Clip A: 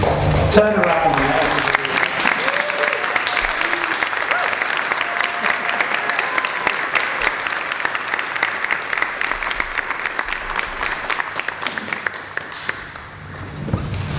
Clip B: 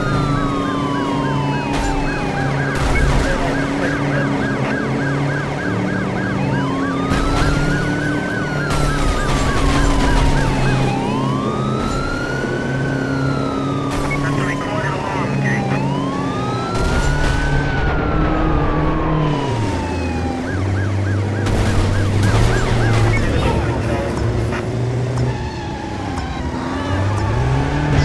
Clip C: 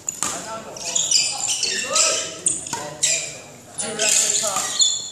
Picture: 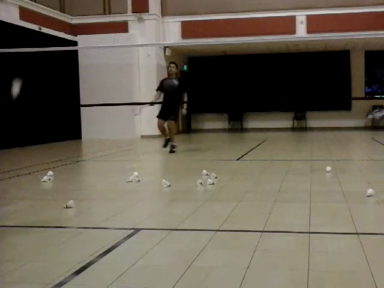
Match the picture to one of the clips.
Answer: C